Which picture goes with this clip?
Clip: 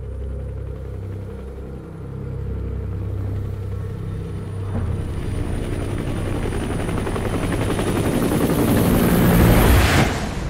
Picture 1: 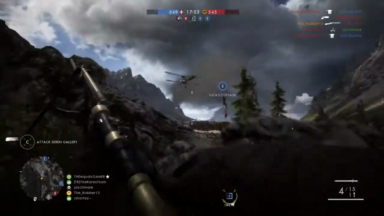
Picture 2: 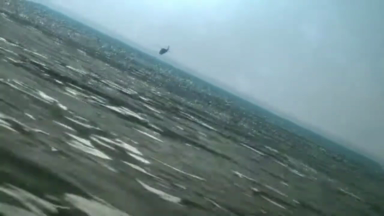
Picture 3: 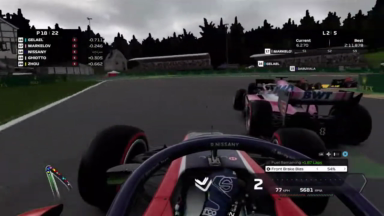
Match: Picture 2